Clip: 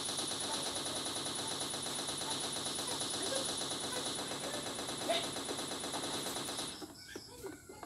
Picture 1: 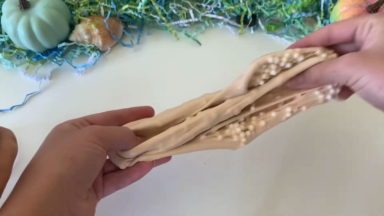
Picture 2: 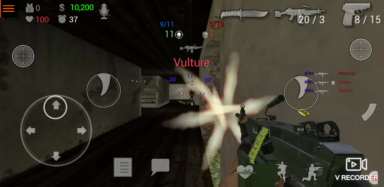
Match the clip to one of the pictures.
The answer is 2